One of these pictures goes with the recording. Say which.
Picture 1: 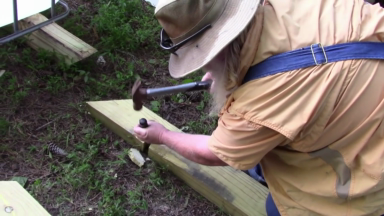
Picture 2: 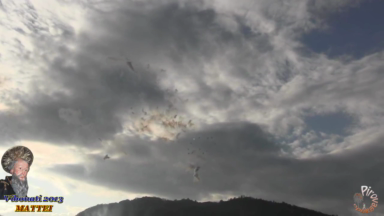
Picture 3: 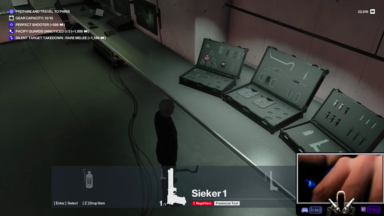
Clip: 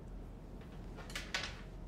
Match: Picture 3